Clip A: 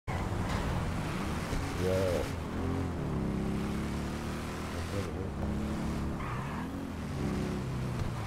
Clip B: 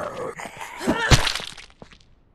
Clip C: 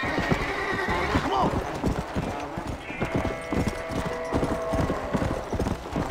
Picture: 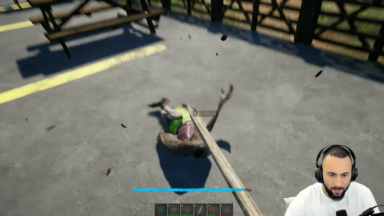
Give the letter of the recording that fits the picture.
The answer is B